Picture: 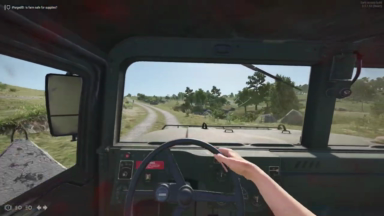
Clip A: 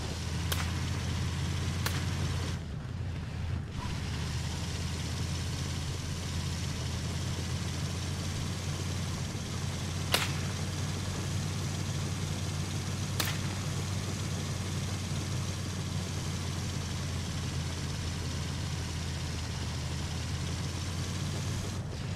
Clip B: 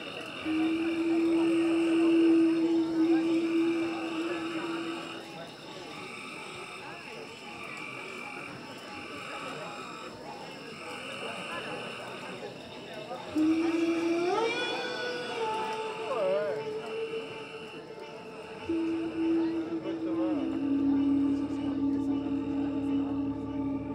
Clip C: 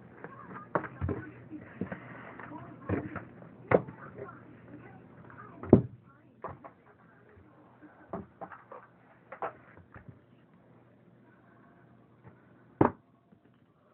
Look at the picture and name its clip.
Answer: A